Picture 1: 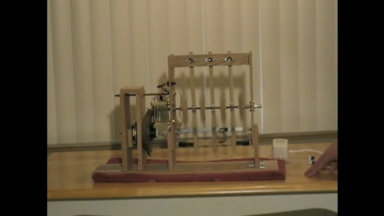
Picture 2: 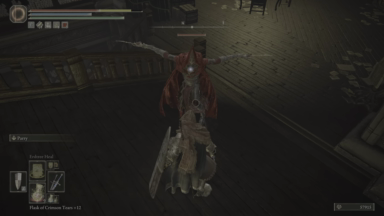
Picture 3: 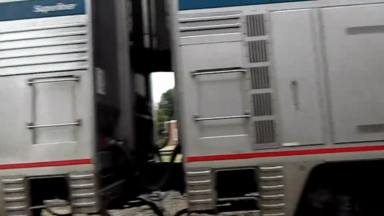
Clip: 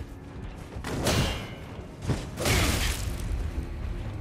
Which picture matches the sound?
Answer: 2